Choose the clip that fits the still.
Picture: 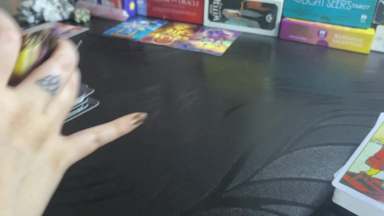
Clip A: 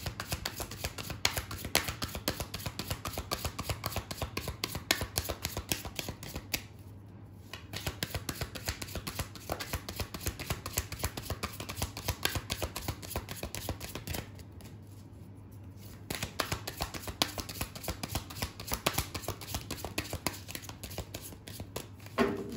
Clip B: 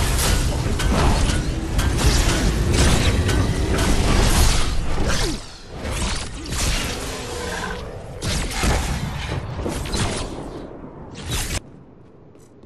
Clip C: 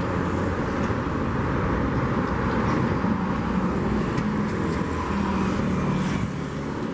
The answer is A